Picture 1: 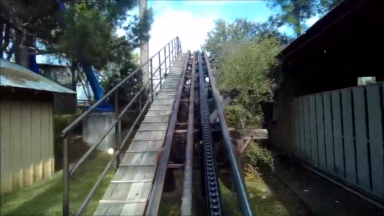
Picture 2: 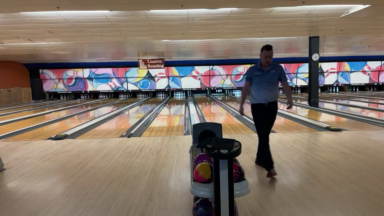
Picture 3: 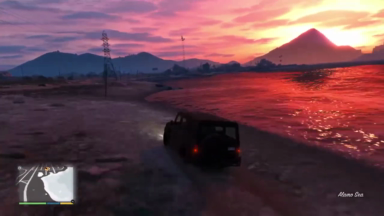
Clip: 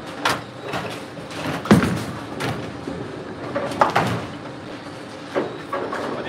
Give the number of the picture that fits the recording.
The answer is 2